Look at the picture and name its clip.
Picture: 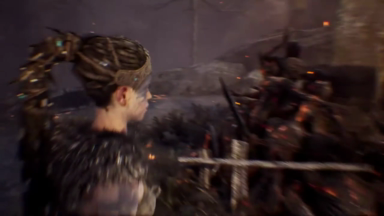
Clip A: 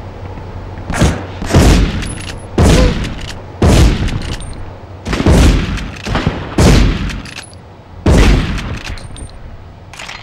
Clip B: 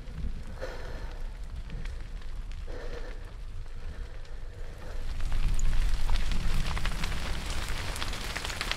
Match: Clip B